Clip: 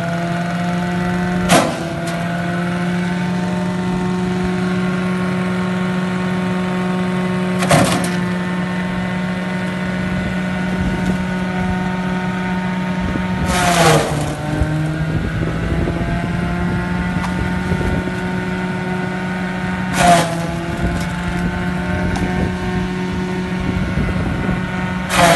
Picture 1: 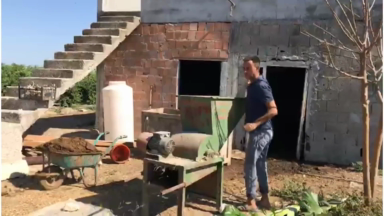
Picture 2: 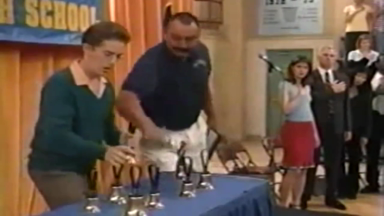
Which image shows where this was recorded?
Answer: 1